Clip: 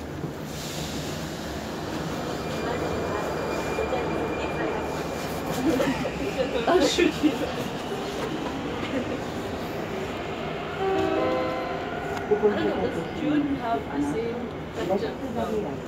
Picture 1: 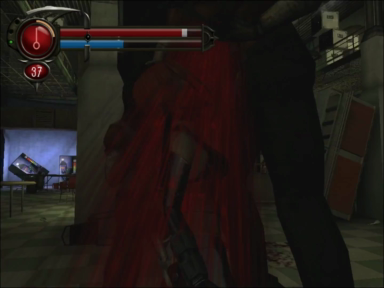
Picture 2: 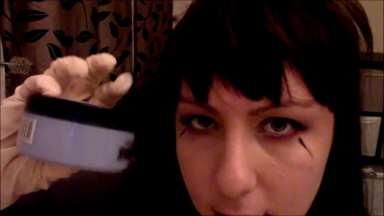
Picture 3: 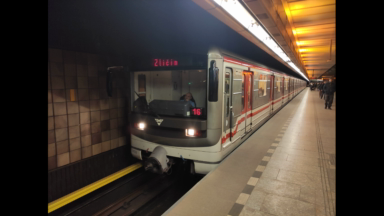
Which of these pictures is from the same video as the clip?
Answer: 3